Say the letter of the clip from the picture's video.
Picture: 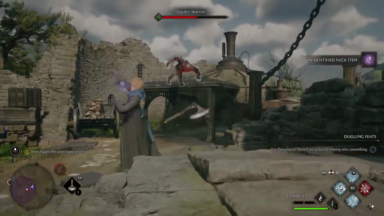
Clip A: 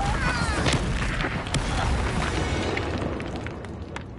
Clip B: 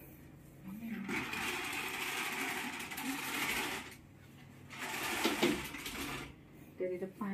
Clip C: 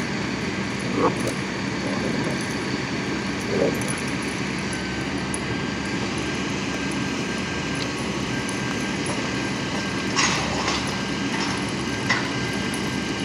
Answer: A